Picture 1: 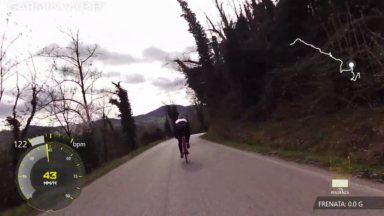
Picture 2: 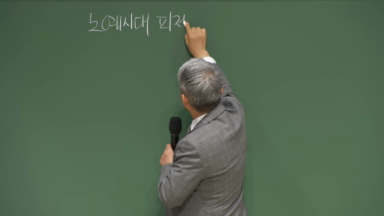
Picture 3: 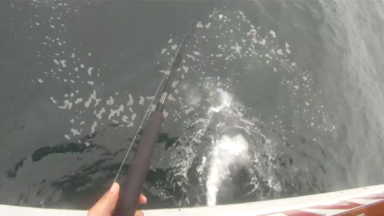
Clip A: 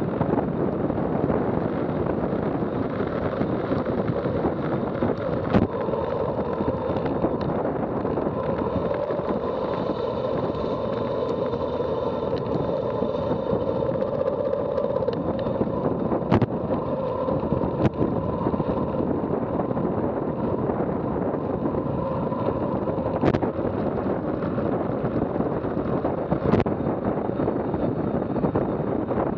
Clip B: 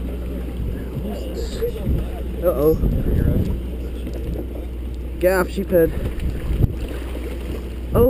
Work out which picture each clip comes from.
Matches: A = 1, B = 3